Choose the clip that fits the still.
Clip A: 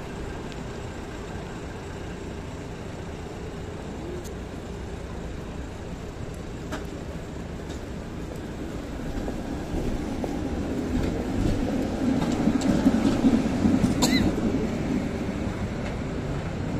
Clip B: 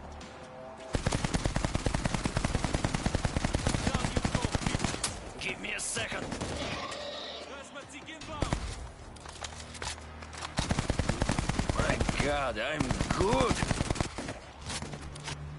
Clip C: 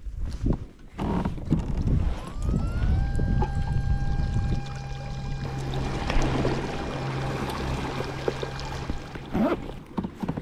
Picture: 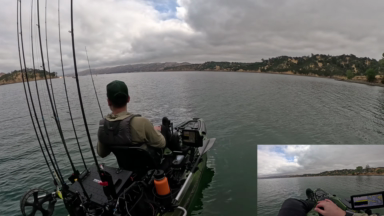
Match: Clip C